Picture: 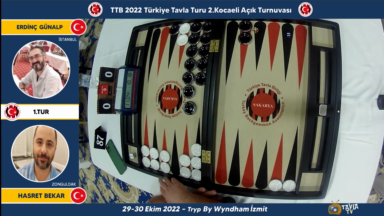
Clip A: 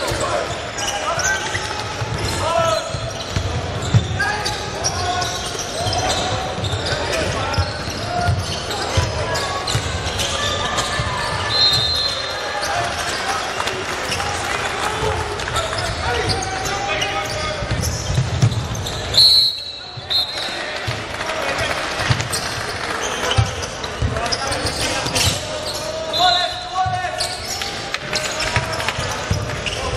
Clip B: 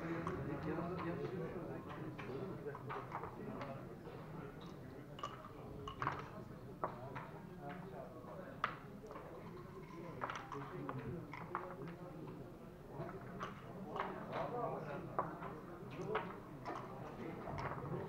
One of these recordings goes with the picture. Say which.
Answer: B